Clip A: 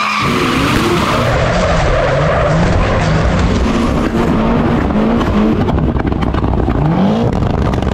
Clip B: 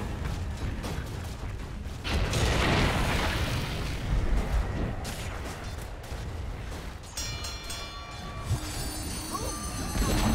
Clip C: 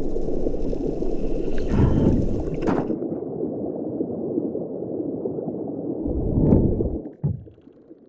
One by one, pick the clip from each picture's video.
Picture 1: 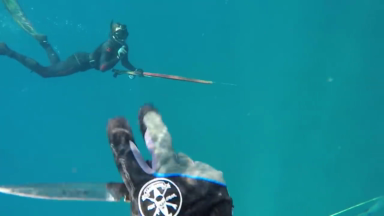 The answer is C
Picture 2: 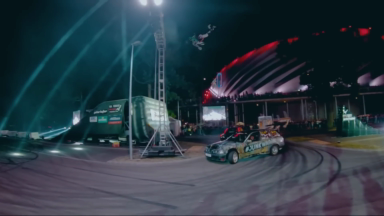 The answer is A